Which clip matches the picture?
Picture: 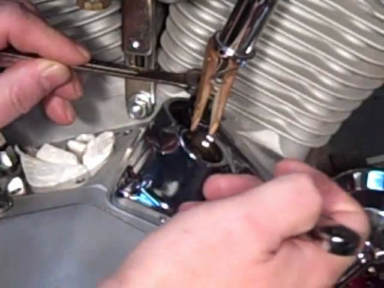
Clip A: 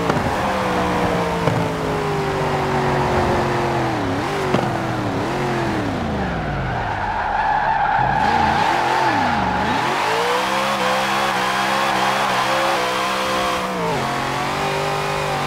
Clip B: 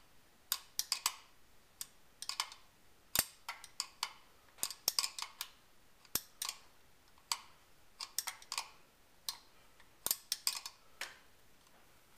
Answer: B